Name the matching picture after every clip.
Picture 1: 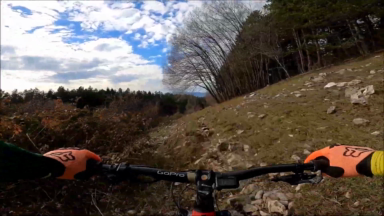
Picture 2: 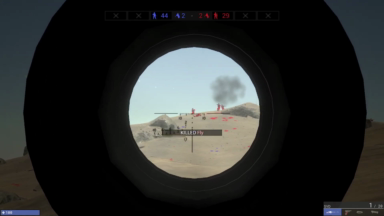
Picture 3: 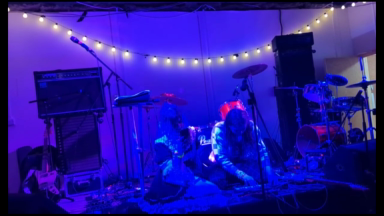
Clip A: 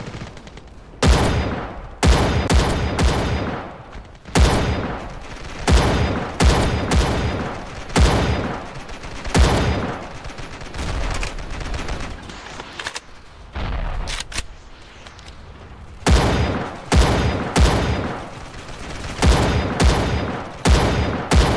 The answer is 2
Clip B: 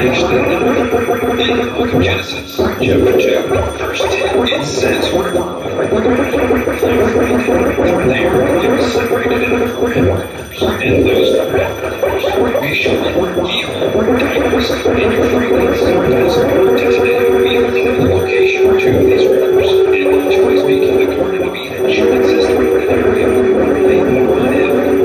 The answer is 3